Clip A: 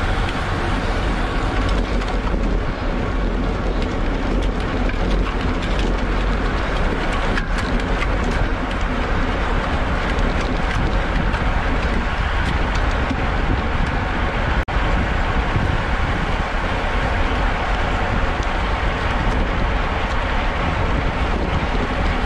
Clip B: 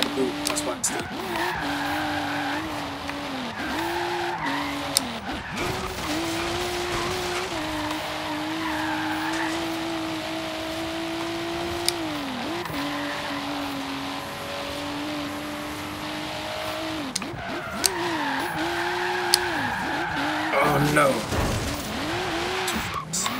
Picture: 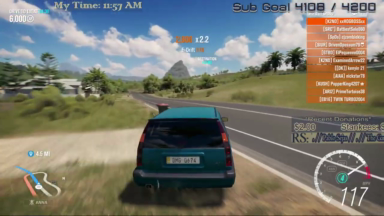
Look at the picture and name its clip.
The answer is B